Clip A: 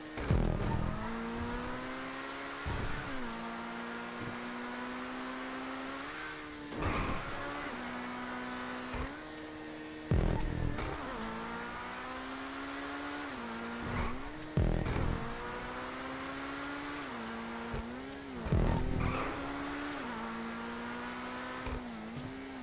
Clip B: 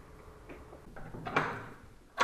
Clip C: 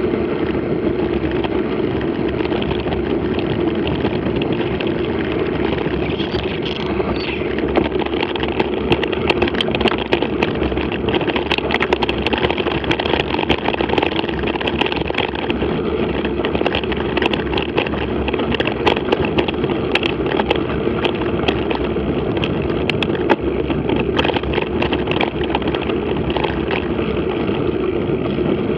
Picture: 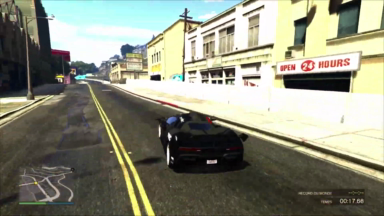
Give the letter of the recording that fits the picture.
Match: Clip A